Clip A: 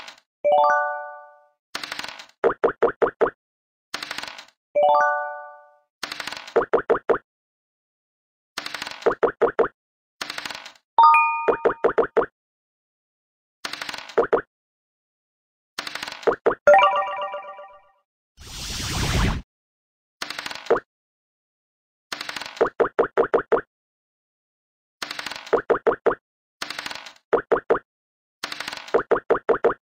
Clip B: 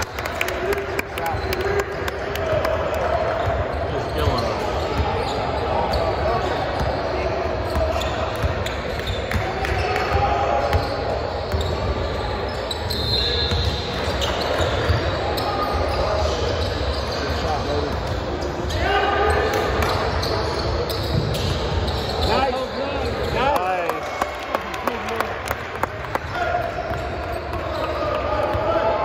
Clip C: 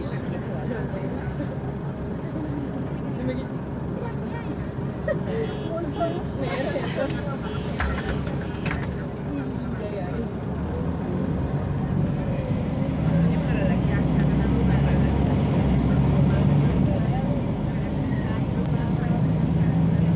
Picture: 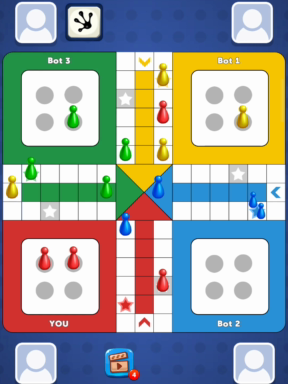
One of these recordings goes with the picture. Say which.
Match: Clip A